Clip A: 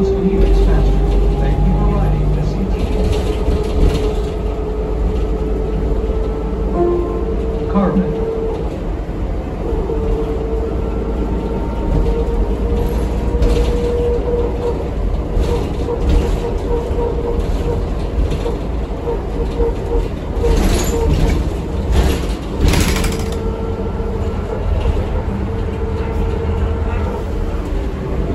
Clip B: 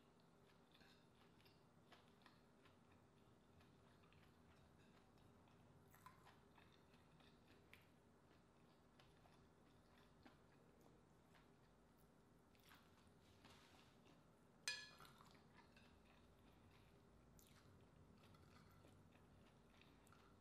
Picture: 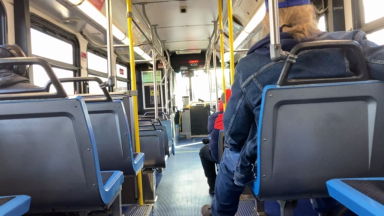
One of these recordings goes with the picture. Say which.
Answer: A